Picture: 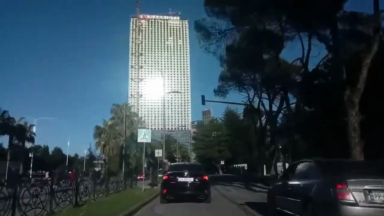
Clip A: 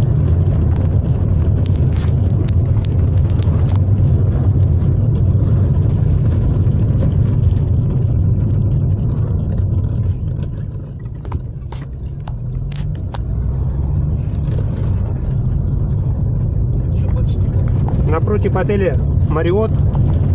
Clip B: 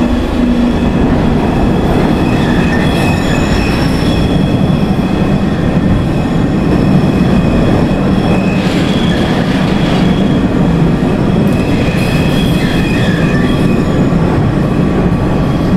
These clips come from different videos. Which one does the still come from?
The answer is A